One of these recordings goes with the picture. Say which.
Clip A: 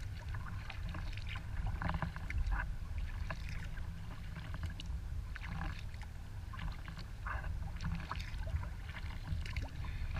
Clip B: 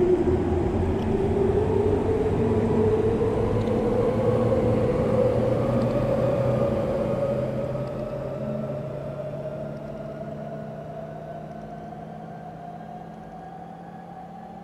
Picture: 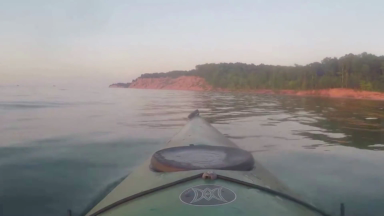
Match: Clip A